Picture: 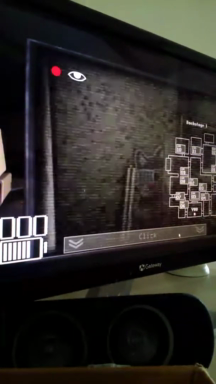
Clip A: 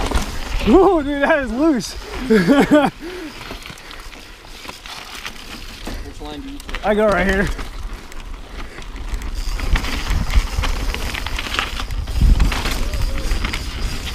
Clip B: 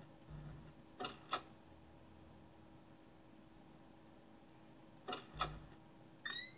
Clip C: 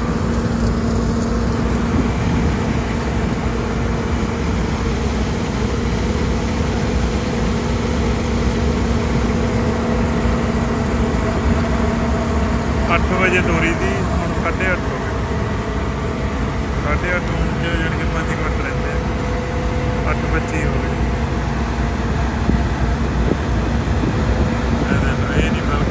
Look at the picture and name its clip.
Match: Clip B